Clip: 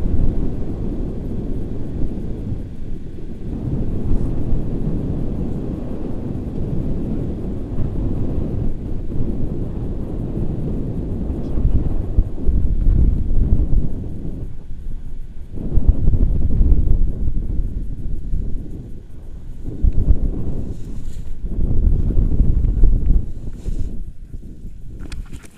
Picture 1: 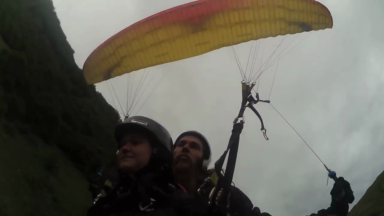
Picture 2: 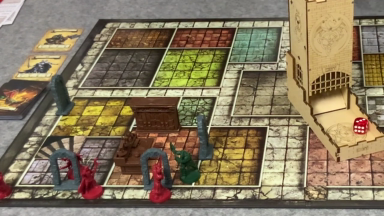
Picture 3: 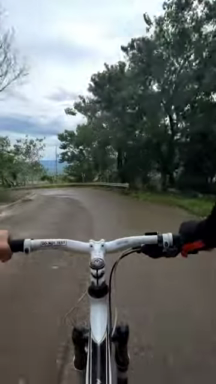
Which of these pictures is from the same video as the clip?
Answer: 1